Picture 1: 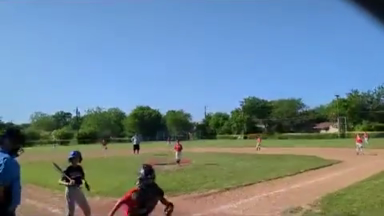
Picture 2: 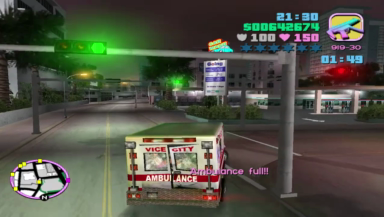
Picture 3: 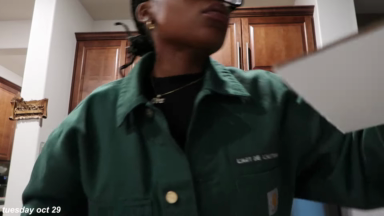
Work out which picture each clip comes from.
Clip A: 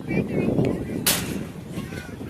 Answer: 1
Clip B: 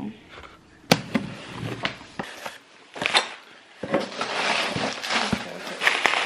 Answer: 3